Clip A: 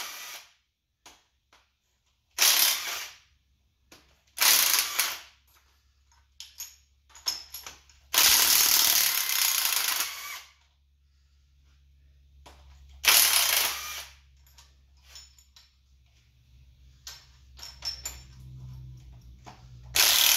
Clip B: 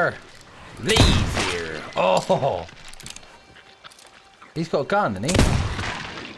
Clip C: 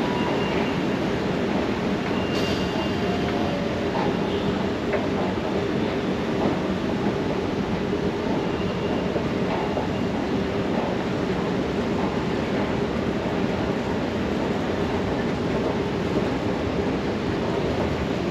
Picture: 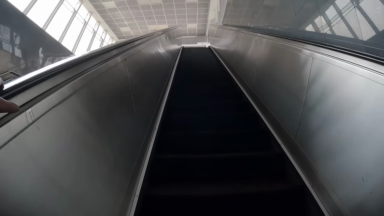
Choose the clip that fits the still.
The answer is C